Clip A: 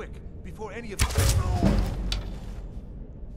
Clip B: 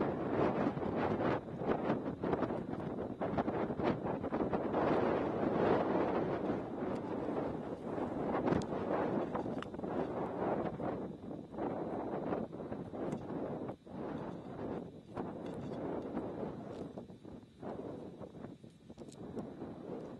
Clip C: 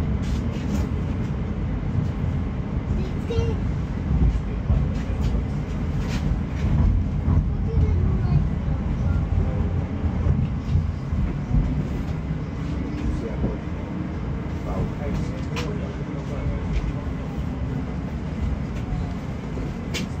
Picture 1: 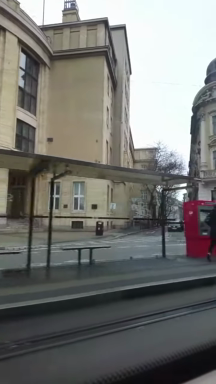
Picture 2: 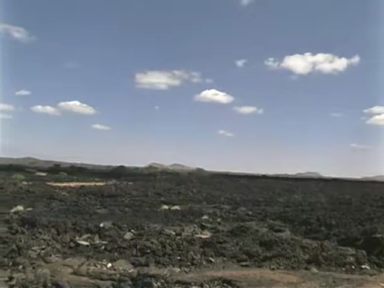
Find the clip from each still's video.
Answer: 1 C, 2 B